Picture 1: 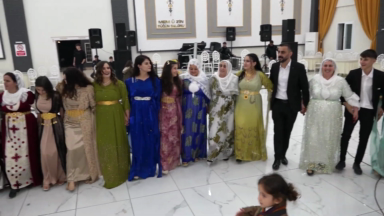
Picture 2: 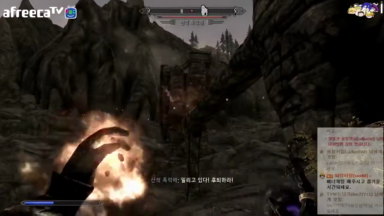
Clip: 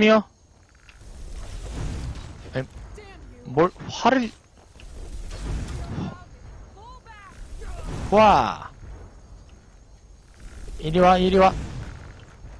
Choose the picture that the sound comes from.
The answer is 2